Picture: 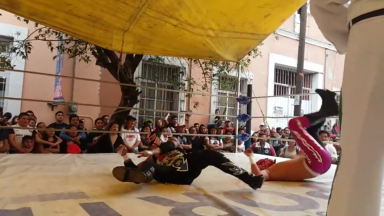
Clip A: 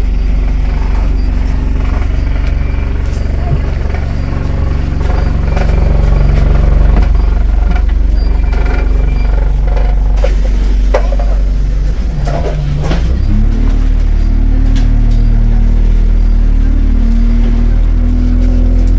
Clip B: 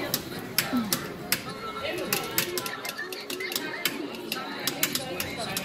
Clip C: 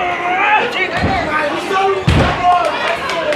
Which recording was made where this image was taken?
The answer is C